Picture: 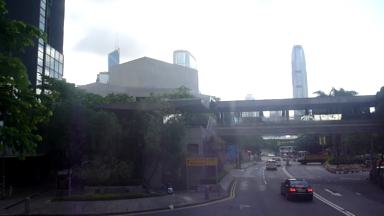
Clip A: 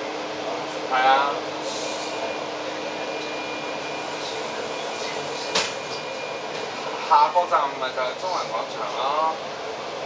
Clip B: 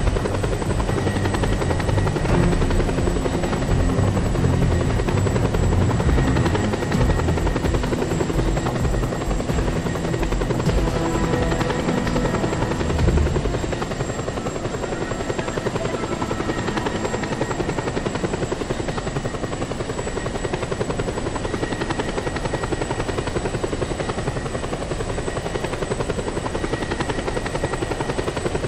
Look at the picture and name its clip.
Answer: A